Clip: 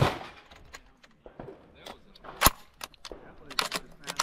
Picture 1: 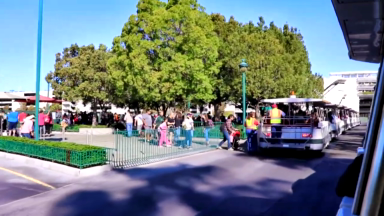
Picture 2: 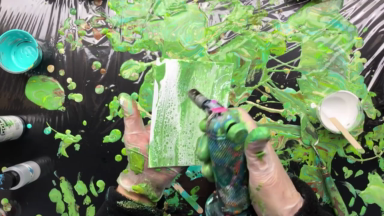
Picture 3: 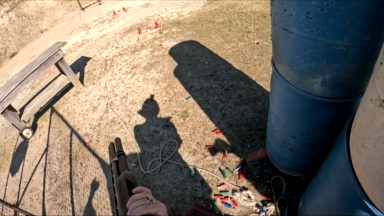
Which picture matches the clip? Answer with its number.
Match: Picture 3